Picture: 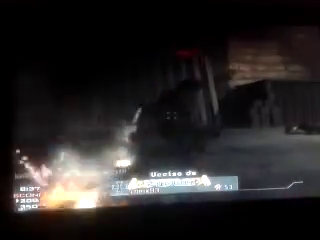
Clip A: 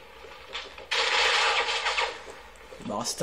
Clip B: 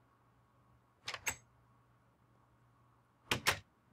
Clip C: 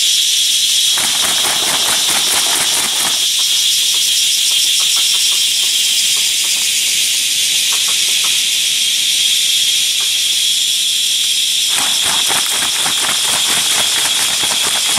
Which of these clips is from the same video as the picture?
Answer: A